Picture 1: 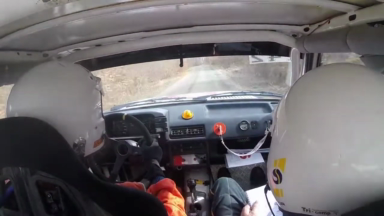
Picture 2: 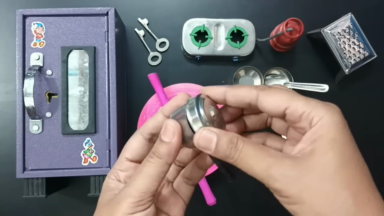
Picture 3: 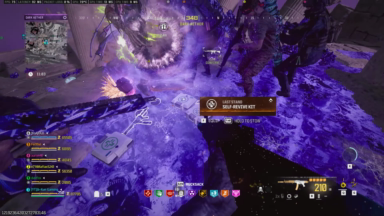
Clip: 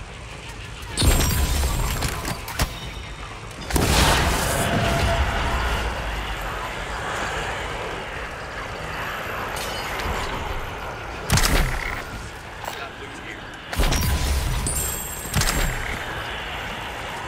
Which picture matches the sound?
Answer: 3